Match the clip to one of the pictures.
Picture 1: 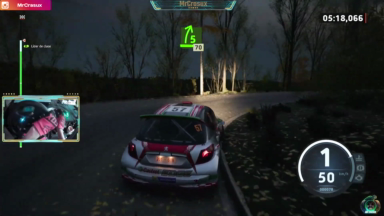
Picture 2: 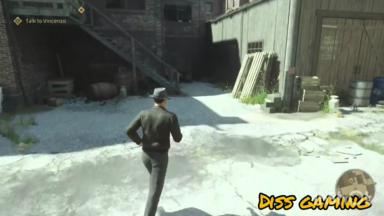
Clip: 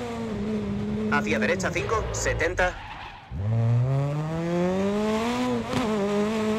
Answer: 1